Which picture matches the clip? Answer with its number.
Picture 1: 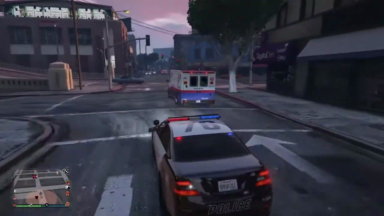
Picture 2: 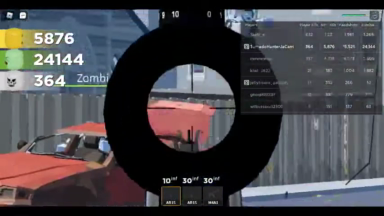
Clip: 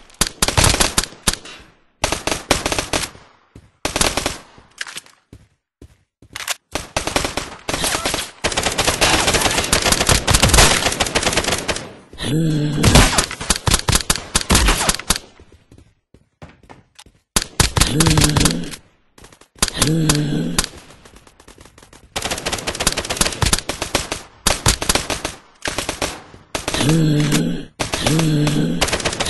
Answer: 2